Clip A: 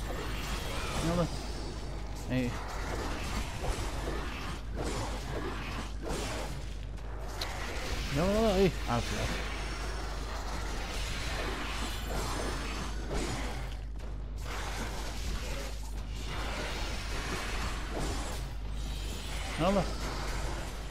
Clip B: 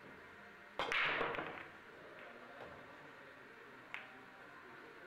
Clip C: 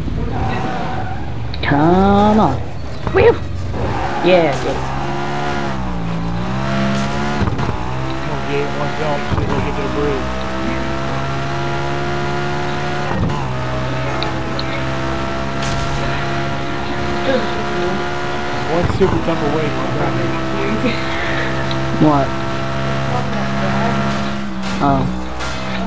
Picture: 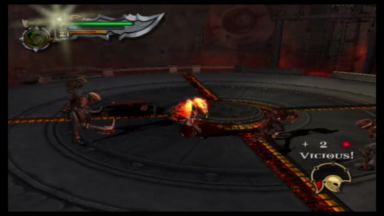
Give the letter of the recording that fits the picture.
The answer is A